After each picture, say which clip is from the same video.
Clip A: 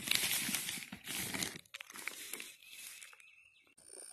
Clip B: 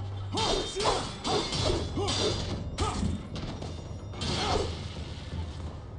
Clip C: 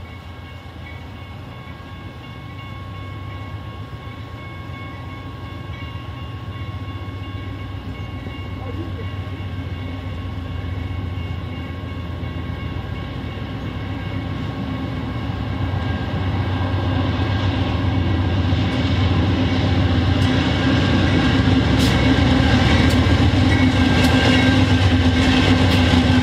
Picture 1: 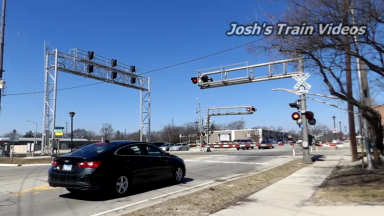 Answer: C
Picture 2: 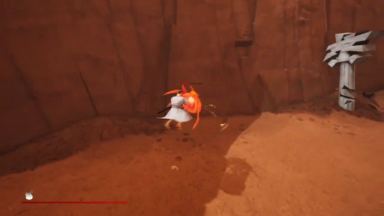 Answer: B